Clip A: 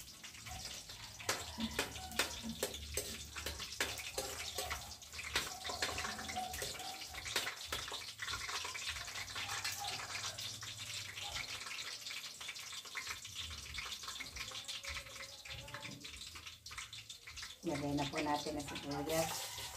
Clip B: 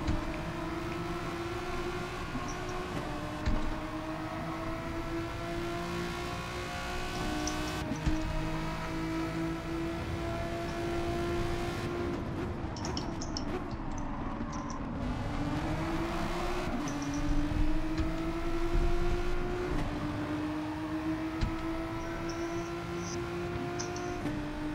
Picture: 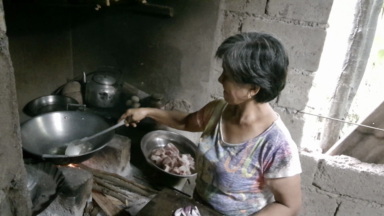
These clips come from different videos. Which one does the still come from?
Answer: A